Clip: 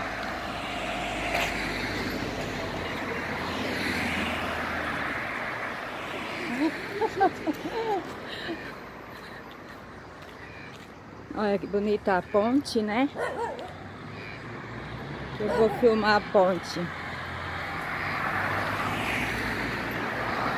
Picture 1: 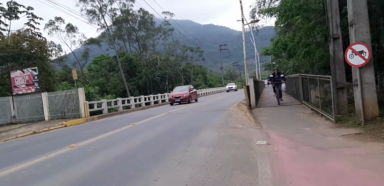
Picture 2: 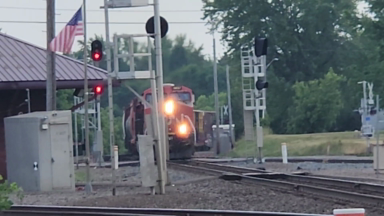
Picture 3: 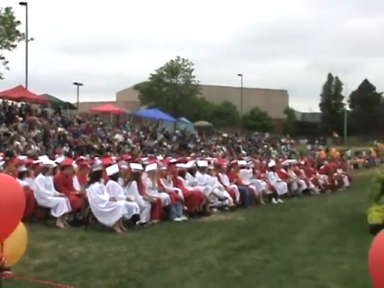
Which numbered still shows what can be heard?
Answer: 1